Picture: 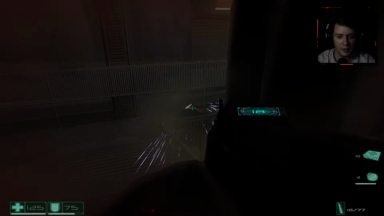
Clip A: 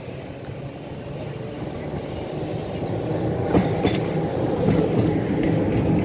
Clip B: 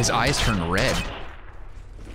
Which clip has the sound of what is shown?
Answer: B